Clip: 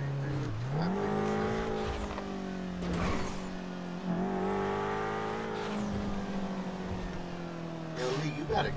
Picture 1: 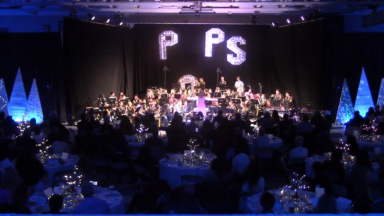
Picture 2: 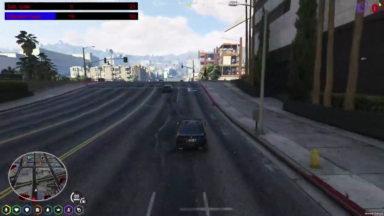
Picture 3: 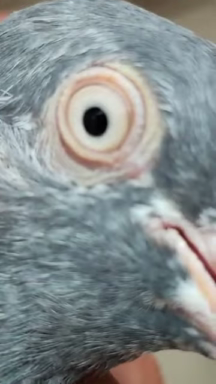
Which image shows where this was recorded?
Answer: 2